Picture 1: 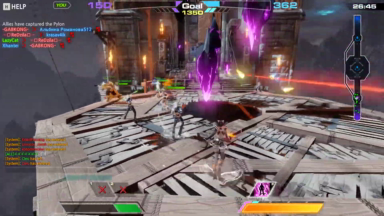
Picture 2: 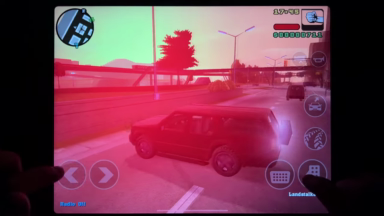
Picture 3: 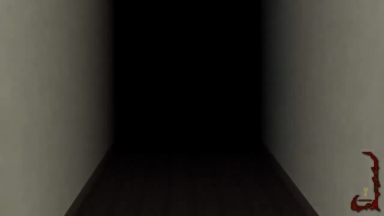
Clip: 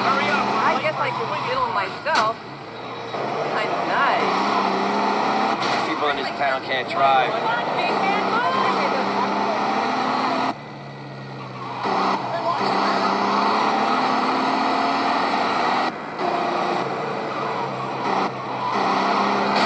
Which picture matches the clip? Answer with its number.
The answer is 2